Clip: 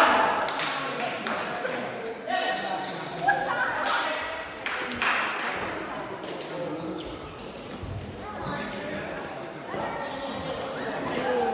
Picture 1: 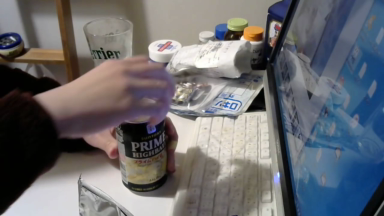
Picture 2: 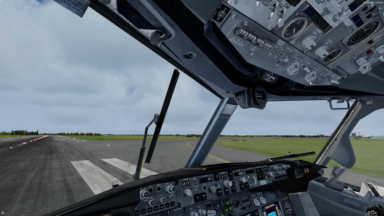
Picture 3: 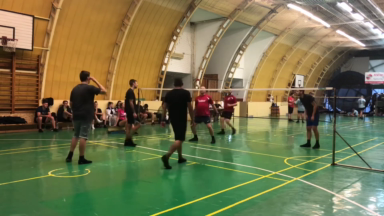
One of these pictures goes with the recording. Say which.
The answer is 3